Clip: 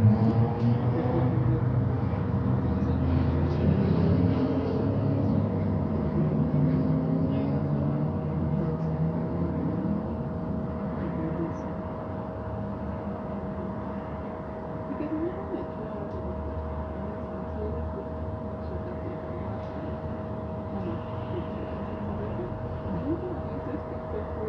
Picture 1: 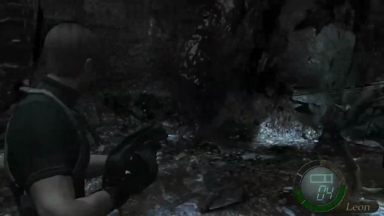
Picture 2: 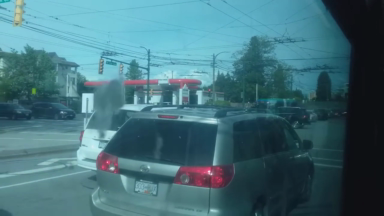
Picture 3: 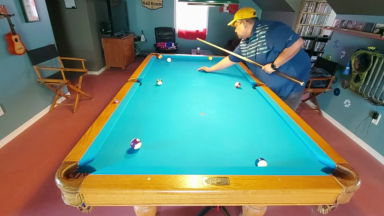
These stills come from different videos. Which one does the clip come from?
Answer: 2